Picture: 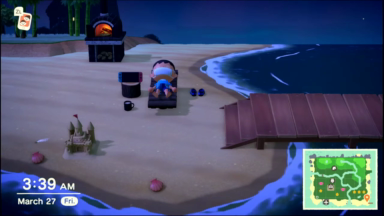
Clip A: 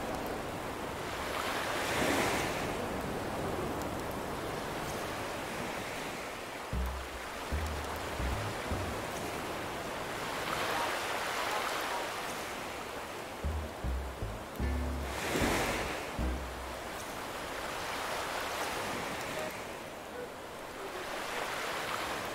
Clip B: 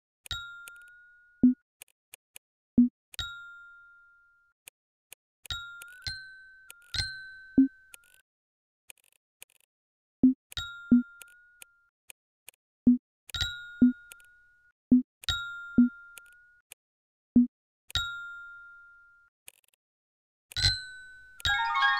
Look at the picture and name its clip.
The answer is A